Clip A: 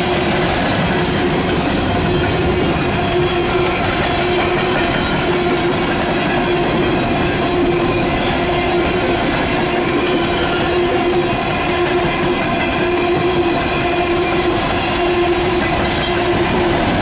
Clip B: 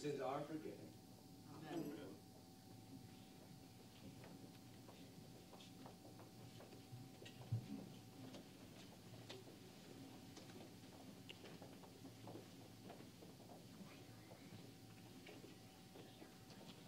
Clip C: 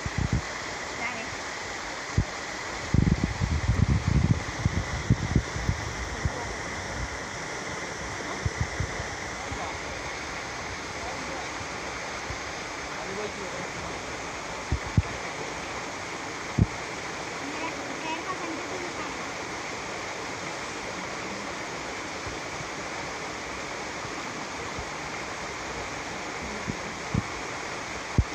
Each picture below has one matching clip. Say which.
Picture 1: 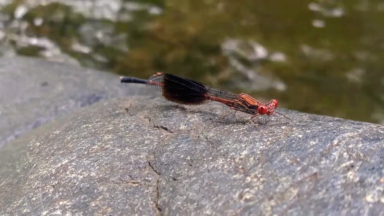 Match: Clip C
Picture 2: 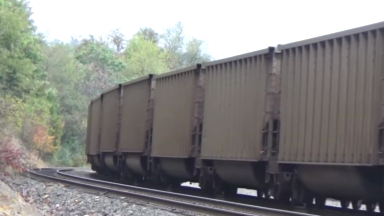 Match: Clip A